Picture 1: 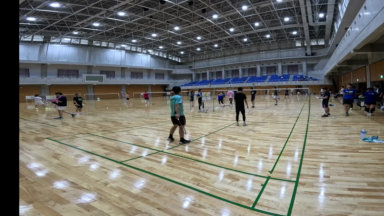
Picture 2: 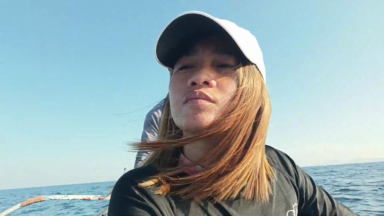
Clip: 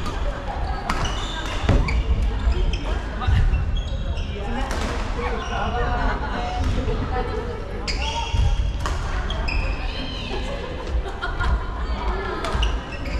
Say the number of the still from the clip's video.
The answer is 1